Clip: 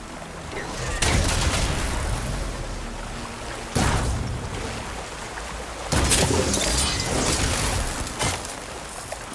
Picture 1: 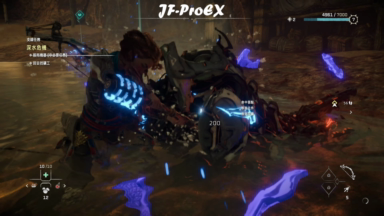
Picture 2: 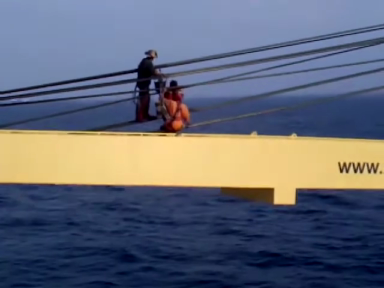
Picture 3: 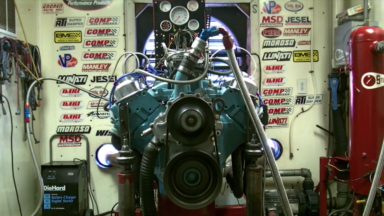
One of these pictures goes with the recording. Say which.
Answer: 1